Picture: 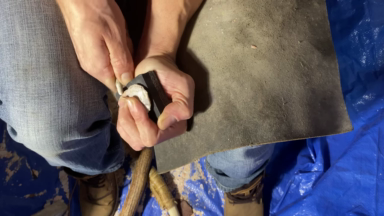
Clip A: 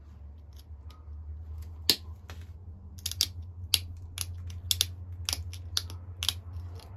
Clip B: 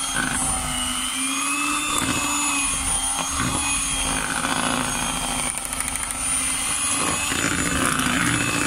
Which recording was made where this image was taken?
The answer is A